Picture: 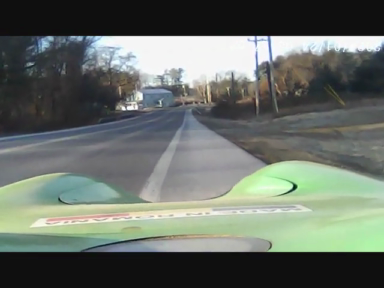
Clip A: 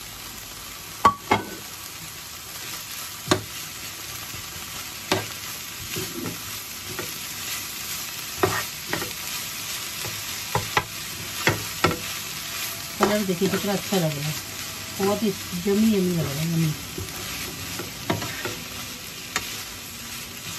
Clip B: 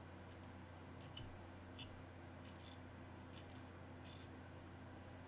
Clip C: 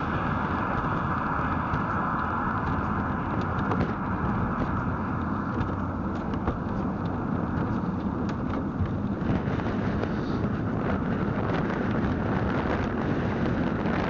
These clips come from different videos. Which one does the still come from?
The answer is C